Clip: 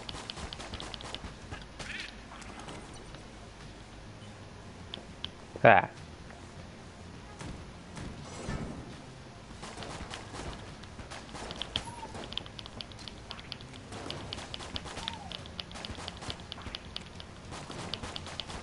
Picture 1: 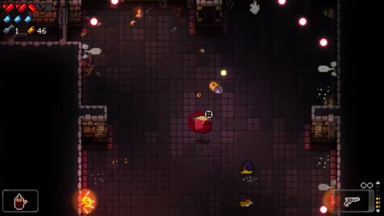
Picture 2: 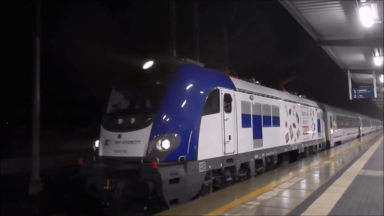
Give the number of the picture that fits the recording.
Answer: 1